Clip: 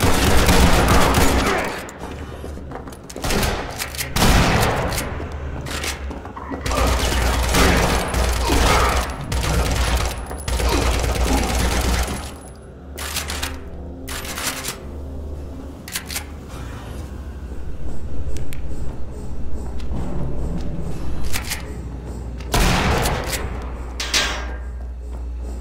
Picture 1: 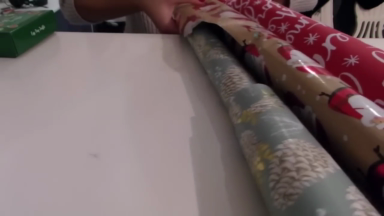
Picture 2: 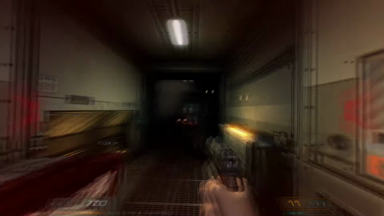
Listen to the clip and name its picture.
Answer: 2